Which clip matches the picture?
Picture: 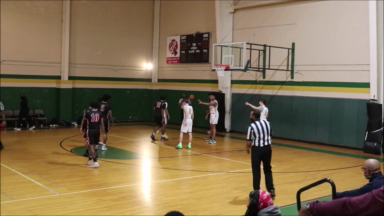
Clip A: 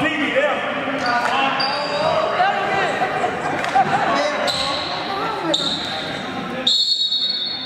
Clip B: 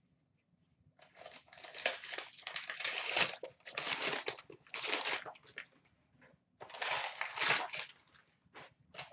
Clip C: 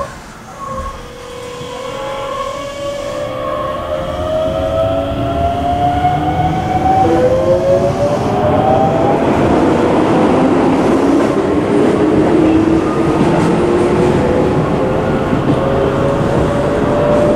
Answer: A